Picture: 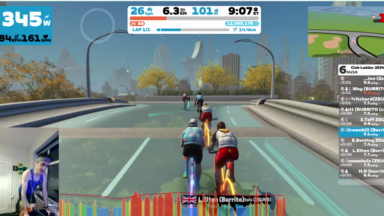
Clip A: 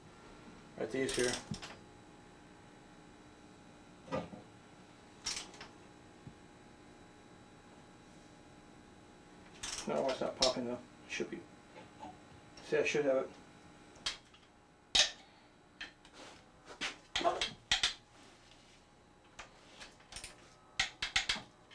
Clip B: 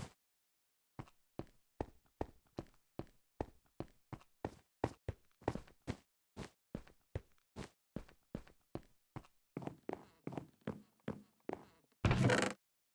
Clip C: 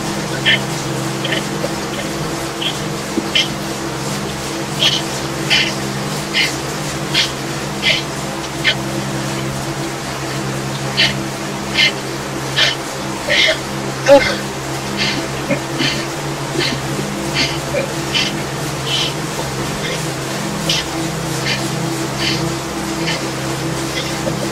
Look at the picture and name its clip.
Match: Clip C